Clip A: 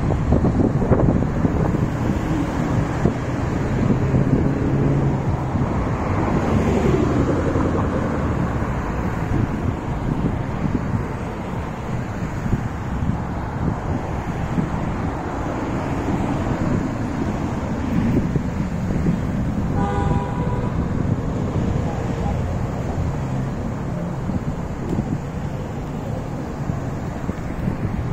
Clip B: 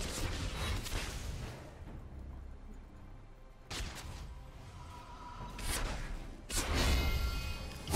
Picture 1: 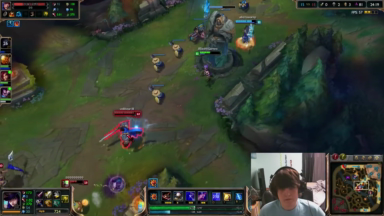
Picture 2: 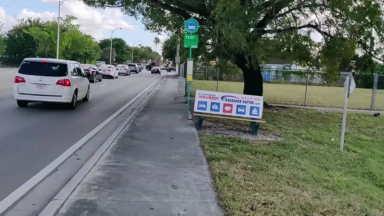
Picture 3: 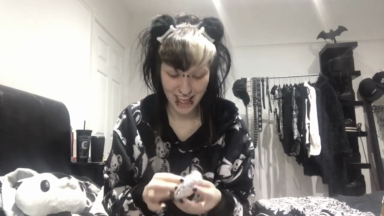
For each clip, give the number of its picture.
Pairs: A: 2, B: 1